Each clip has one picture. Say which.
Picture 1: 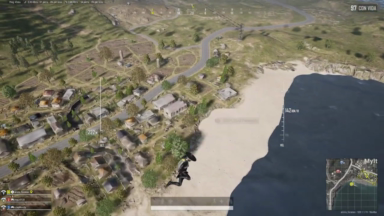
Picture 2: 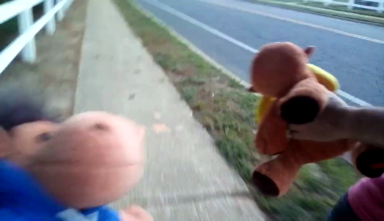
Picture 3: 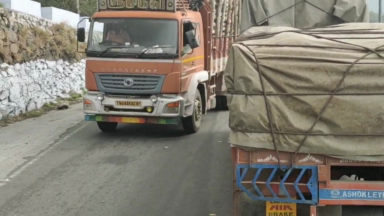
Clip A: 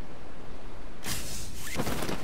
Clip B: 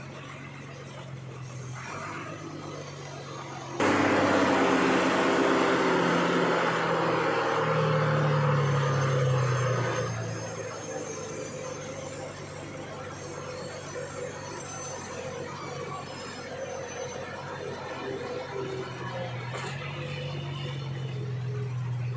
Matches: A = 1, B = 3